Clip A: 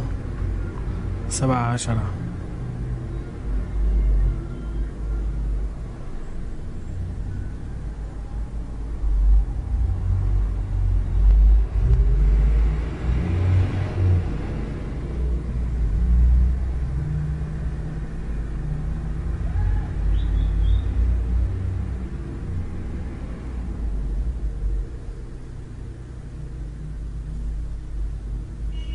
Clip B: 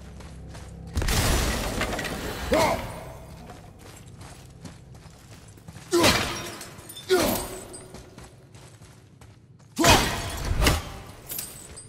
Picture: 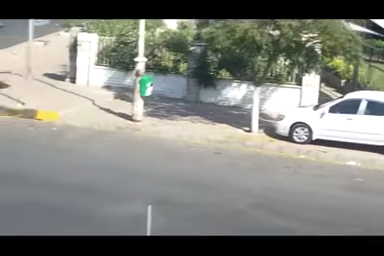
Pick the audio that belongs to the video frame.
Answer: A